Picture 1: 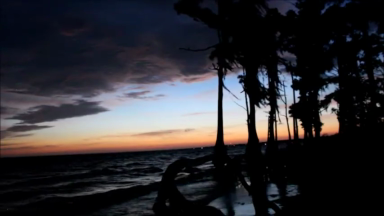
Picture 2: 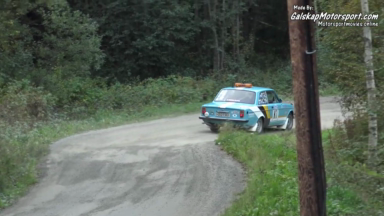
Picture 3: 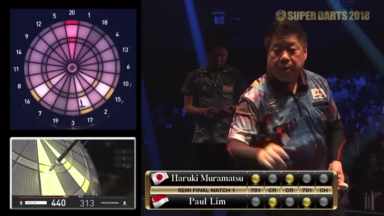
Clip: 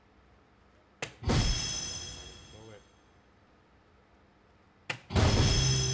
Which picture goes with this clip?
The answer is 3